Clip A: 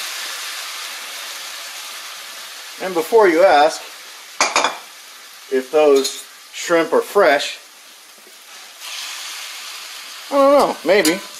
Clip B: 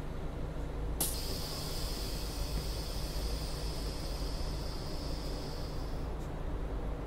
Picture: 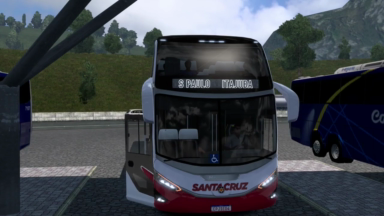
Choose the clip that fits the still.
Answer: B